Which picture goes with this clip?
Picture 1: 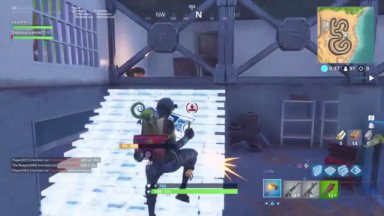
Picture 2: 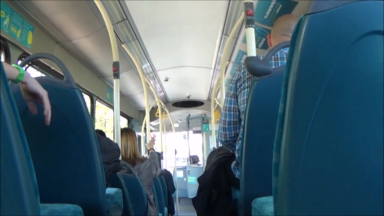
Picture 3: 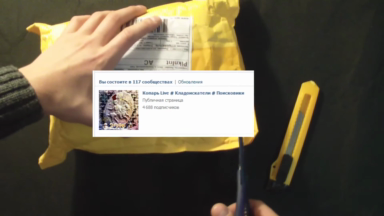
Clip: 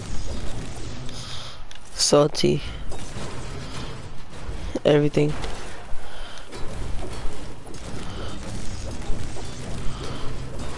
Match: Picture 1